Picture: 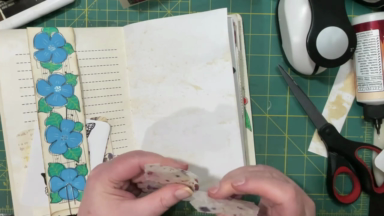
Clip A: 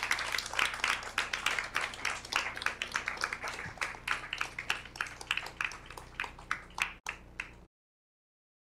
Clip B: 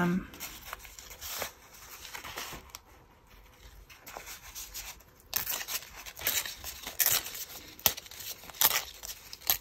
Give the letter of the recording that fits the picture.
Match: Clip B